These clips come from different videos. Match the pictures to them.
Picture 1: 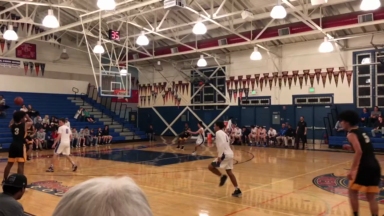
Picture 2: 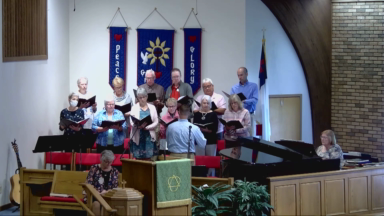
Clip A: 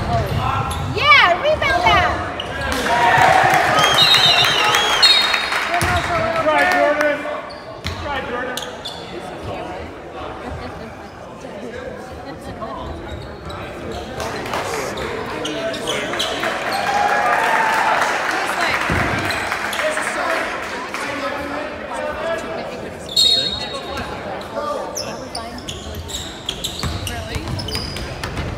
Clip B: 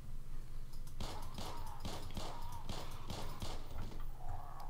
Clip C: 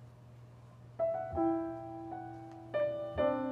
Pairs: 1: A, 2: C